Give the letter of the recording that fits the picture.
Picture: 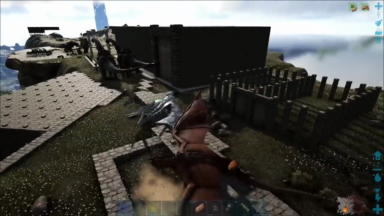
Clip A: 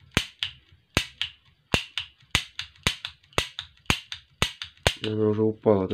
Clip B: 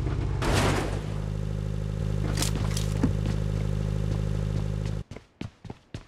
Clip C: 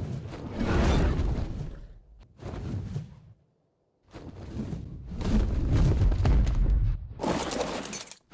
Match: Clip C